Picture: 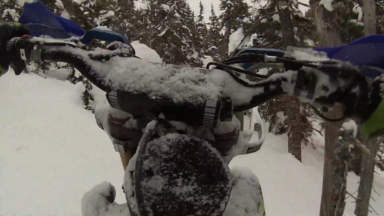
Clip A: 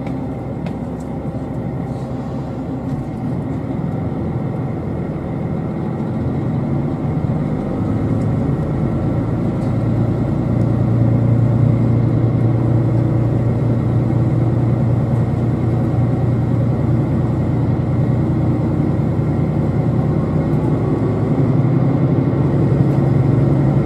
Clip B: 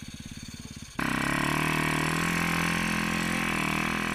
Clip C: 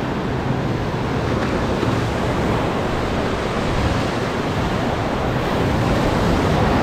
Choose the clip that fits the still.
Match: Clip B